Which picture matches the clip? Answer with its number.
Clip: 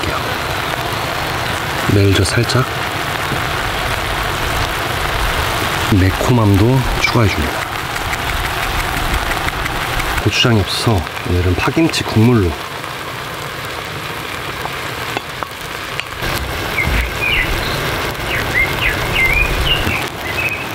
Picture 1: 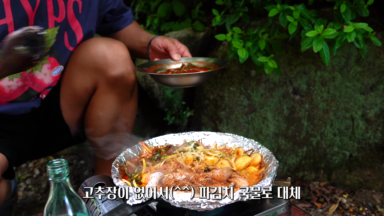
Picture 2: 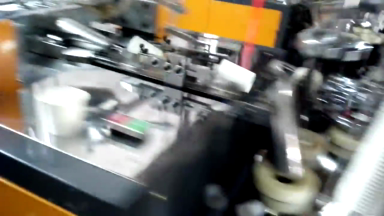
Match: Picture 1